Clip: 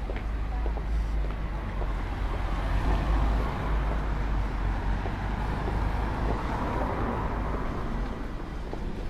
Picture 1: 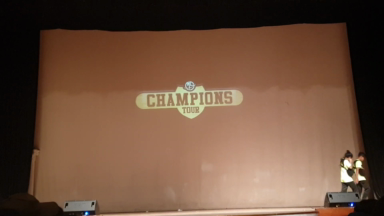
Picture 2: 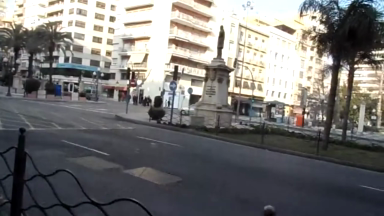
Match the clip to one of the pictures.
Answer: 2